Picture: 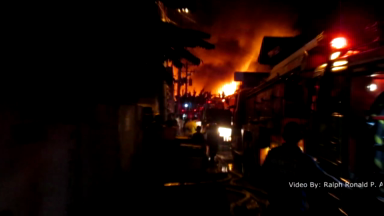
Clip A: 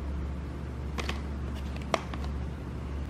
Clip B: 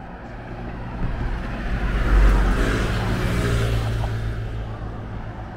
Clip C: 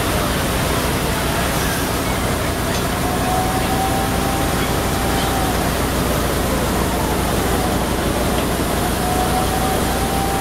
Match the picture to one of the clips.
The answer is C